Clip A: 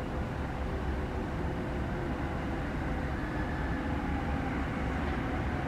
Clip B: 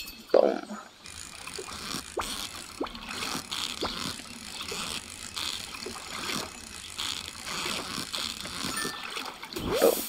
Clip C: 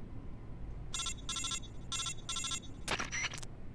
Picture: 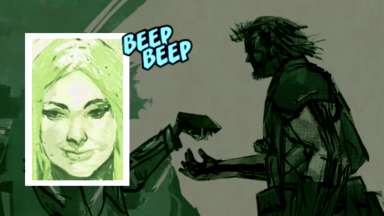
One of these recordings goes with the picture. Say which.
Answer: C